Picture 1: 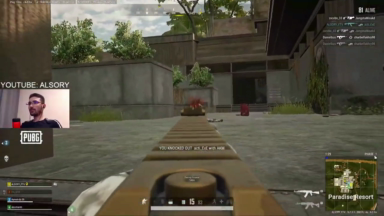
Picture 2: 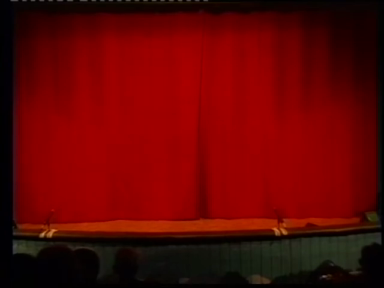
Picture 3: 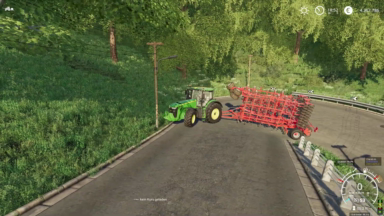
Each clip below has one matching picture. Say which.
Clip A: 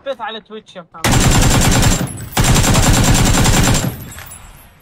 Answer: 1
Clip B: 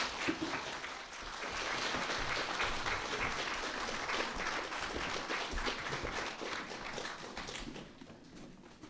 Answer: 2